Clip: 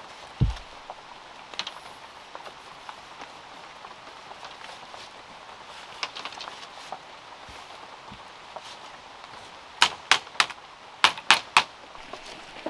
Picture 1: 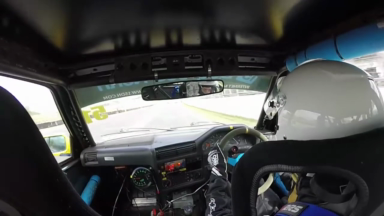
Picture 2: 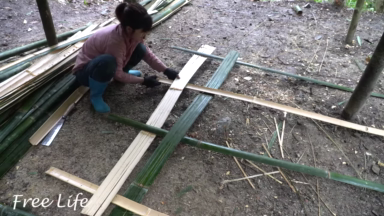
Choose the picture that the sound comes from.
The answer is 2